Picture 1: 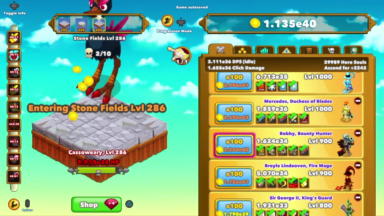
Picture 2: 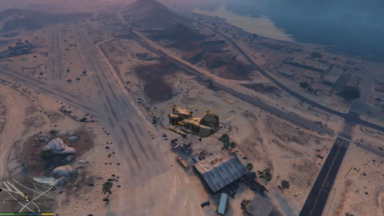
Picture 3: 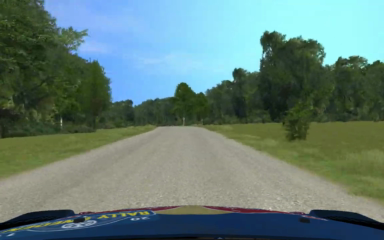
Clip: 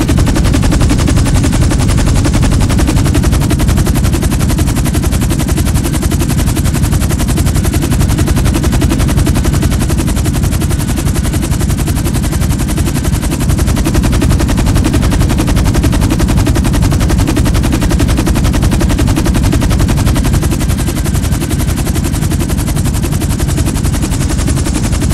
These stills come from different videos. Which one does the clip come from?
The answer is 2